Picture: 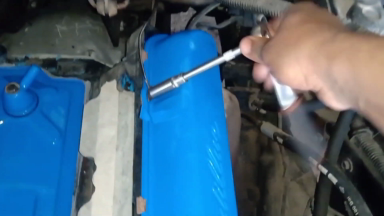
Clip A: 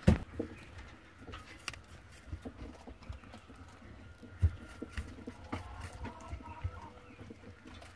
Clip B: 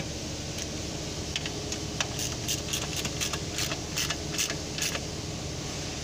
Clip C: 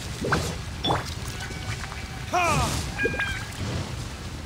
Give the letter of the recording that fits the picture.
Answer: B